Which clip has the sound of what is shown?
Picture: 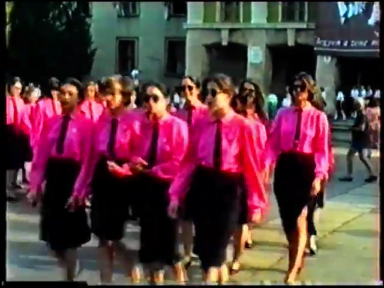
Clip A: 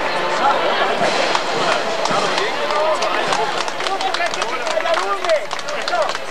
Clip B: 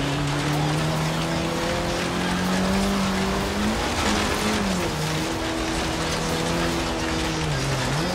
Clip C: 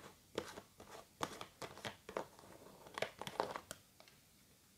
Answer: A